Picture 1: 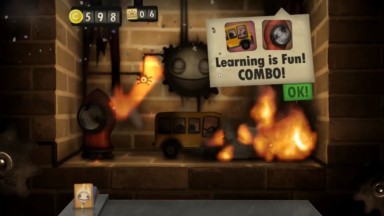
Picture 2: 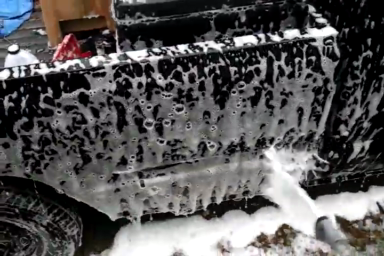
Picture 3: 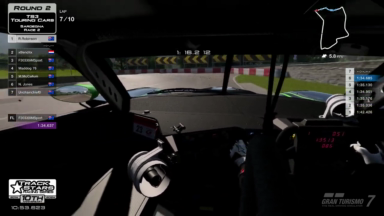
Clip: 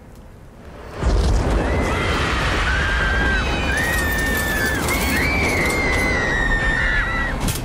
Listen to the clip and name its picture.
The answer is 1